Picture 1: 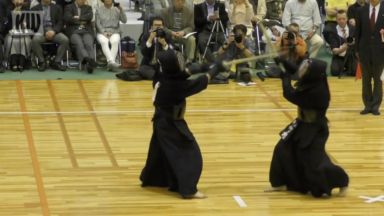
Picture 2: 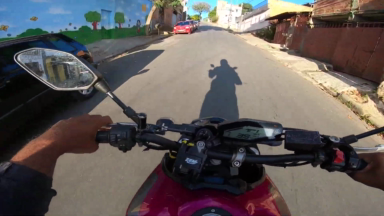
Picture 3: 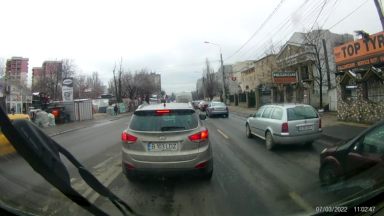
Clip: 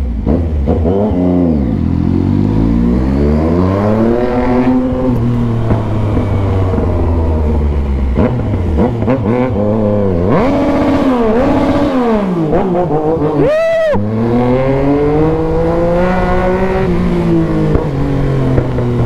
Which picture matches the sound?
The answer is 2